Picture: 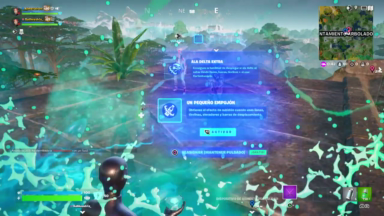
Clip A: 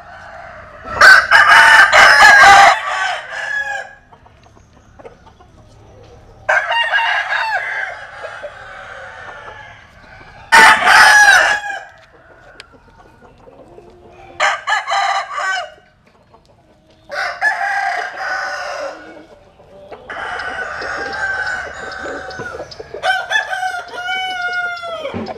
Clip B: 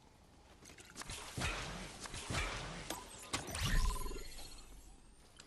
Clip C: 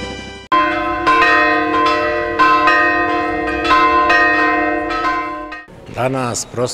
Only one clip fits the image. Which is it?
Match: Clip B